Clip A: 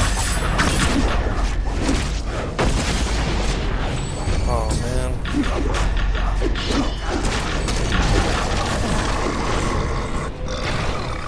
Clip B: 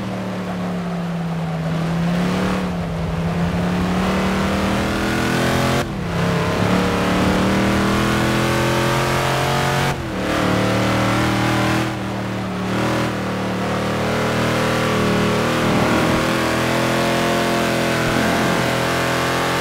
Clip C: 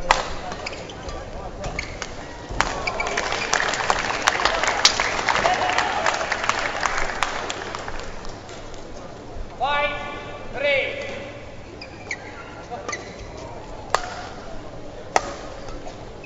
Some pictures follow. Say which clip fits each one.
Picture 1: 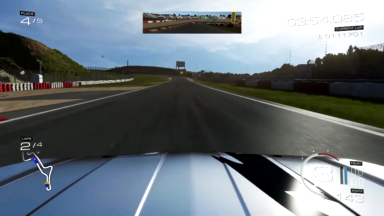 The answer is B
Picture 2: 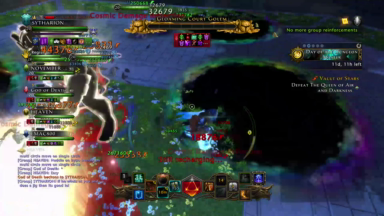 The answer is A